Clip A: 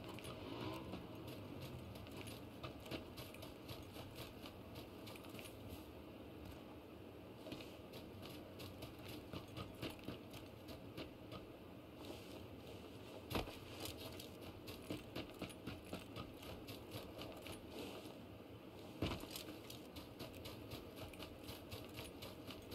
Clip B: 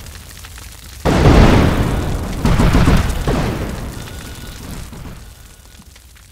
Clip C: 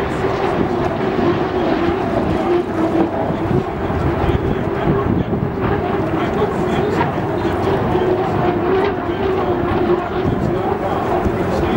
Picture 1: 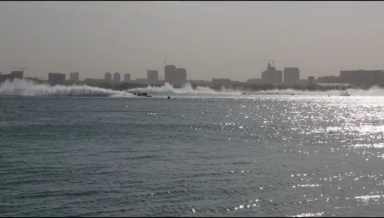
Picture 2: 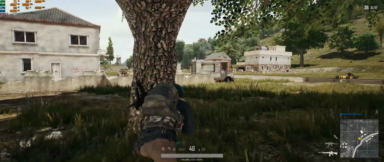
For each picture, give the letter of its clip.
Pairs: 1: C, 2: A